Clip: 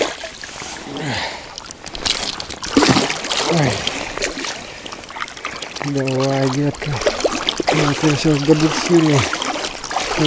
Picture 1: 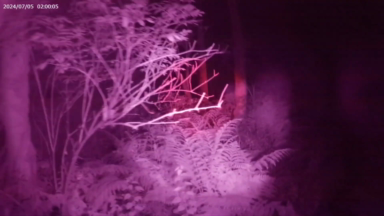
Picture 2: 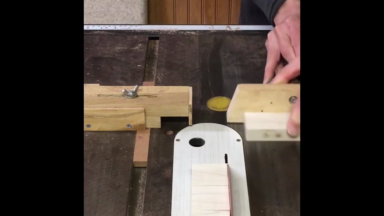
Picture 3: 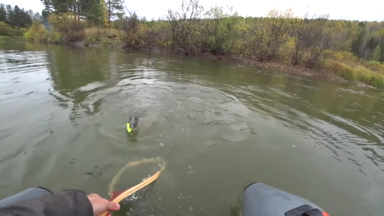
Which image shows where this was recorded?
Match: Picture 3